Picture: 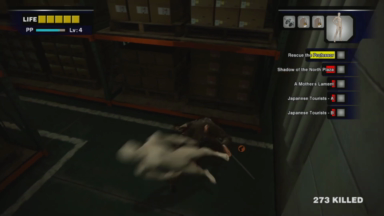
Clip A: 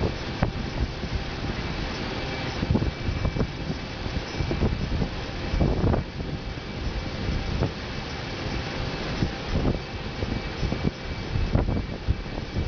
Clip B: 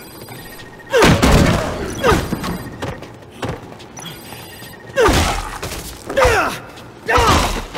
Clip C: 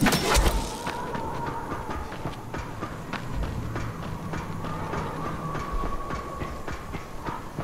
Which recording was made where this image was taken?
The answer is B